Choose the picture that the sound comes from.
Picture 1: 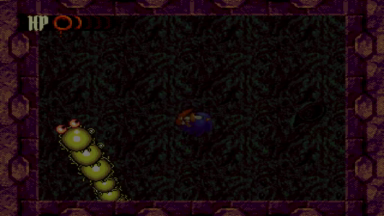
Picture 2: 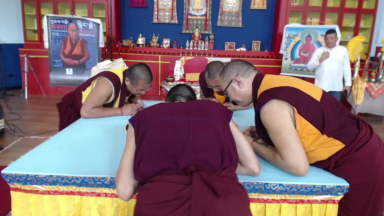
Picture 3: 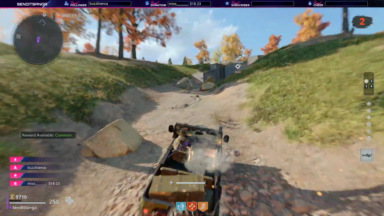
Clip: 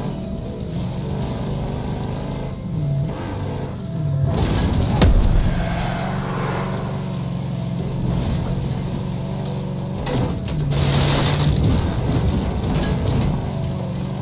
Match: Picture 3